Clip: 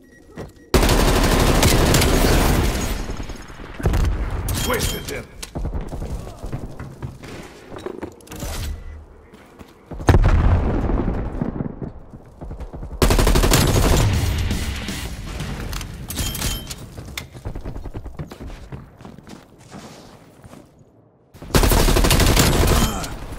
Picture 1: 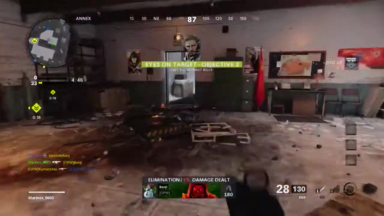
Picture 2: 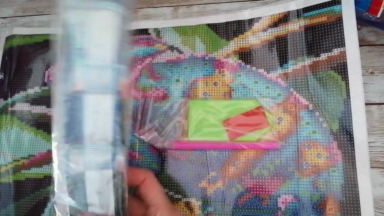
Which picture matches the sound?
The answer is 1